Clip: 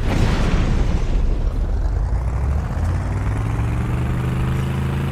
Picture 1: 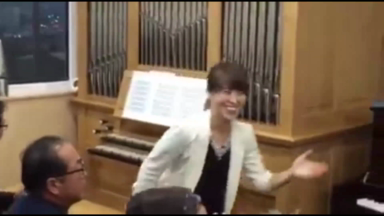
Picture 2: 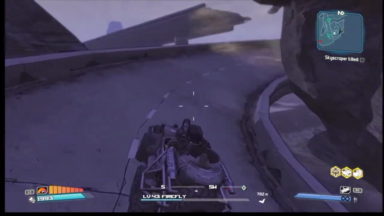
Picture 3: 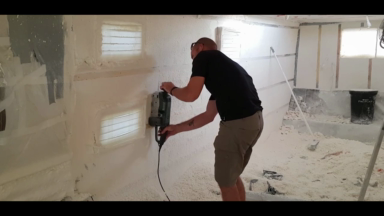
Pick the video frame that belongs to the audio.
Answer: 2